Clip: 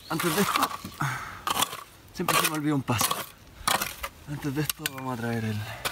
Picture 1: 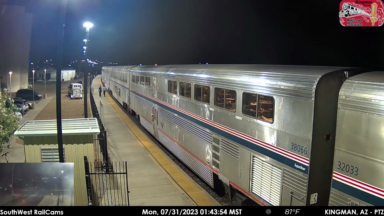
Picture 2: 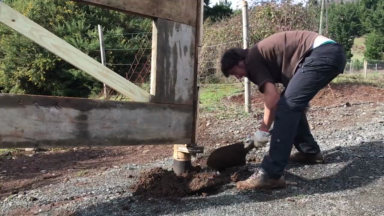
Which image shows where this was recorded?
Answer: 2